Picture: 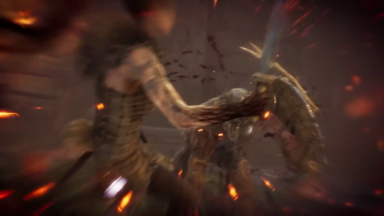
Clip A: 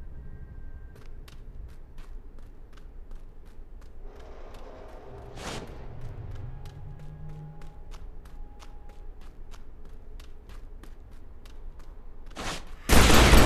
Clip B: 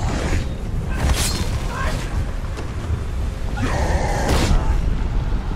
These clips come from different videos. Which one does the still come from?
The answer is B